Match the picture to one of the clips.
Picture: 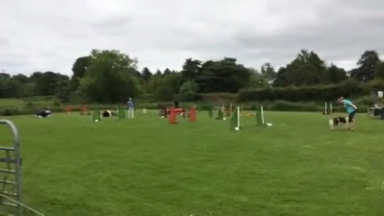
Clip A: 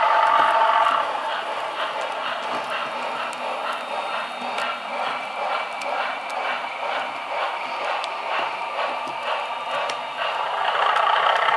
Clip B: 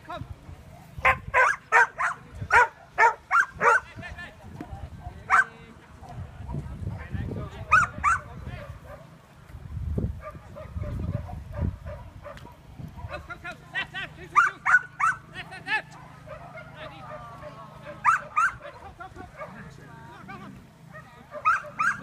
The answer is B